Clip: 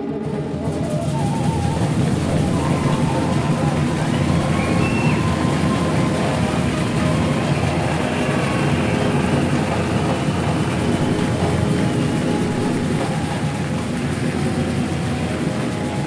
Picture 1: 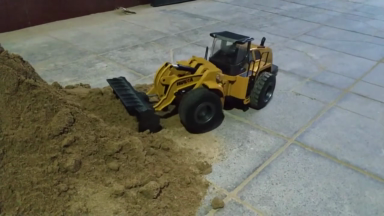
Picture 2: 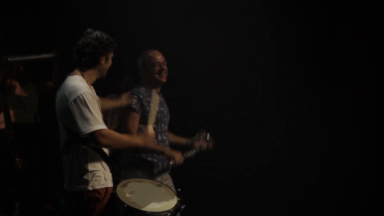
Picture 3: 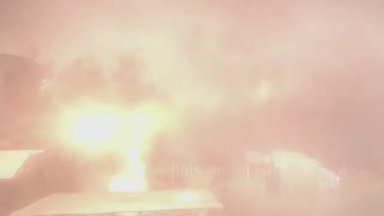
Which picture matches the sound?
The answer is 2